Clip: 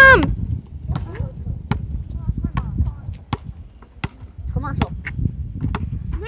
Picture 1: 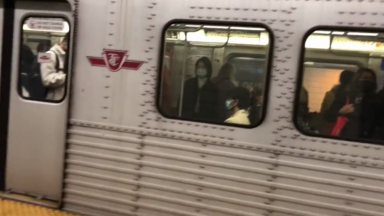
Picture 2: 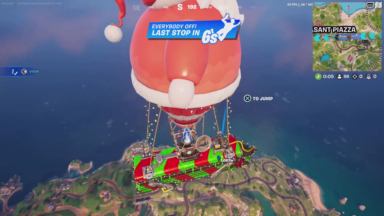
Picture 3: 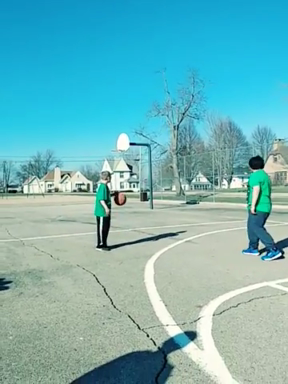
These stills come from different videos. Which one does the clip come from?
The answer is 3